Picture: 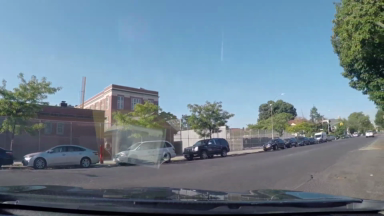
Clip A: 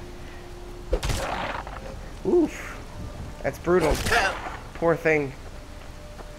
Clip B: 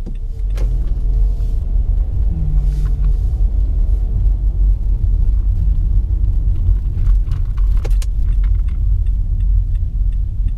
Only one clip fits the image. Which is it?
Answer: B